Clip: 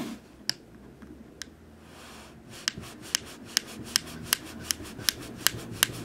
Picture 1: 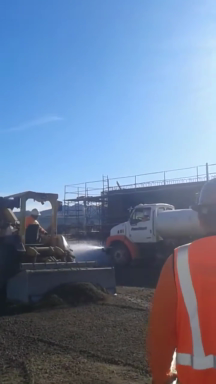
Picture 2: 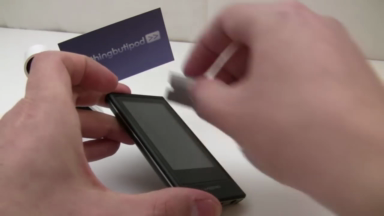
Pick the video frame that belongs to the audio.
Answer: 2